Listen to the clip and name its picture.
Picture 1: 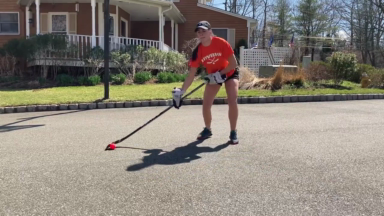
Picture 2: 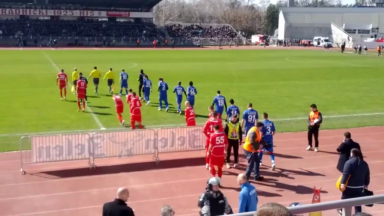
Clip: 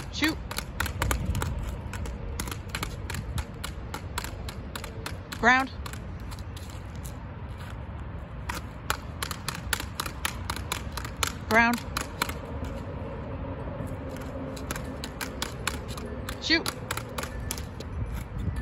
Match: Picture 1